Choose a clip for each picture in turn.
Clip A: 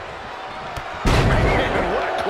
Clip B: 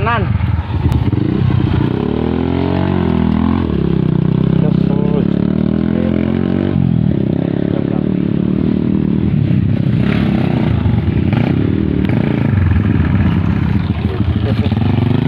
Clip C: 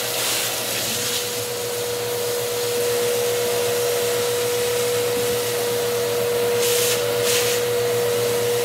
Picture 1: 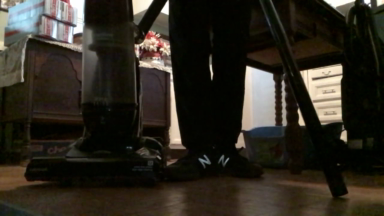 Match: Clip C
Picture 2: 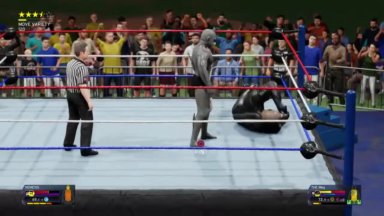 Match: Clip A